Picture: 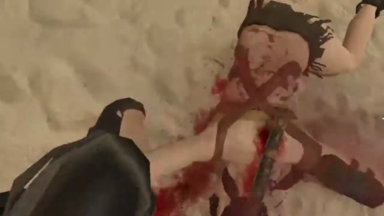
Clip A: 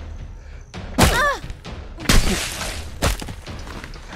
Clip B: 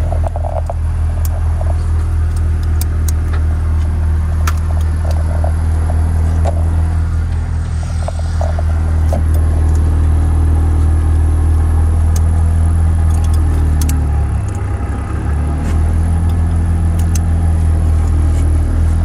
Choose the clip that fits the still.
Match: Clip A